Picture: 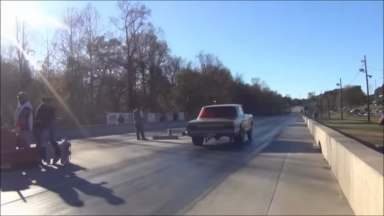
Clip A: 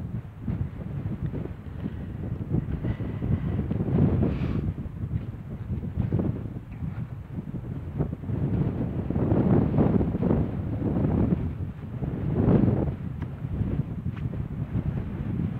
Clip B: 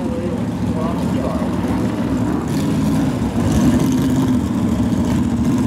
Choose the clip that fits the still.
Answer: B